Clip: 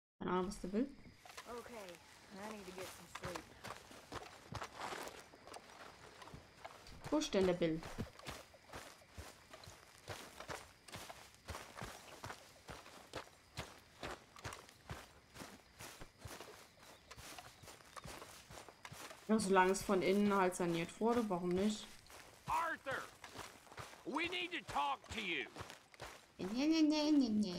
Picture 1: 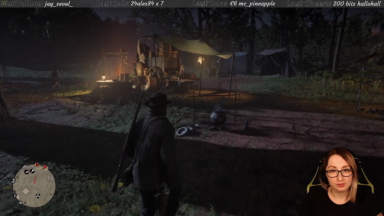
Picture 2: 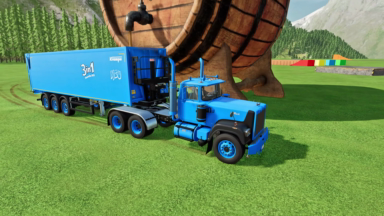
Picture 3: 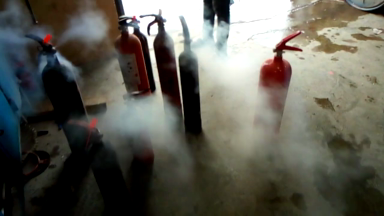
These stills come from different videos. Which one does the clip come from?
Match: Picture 1